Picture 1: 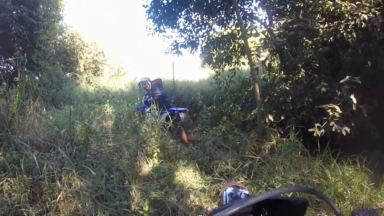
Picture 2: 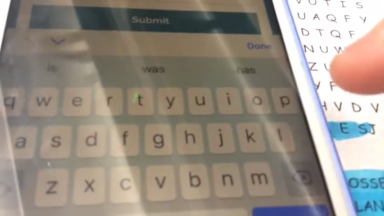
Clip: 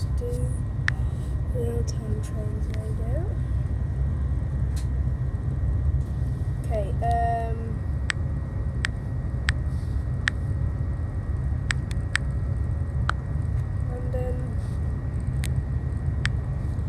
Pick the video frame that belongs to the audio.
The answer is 2